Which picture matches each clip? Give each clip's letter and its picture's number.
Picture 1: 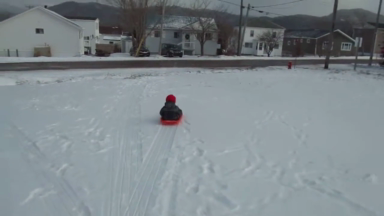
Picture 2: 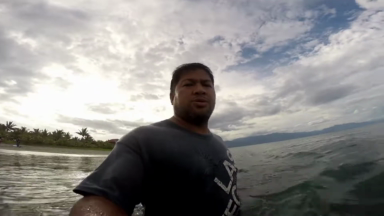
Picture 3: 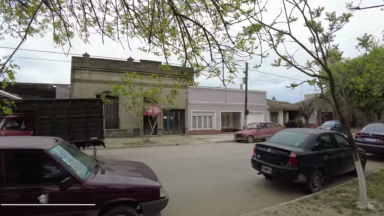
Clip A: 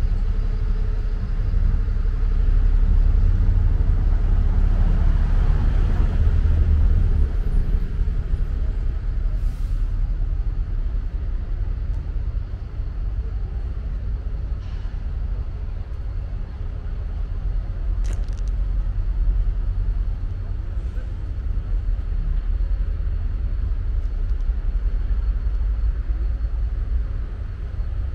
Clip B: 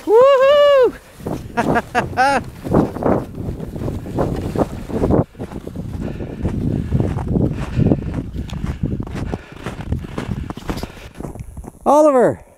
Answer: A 3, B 1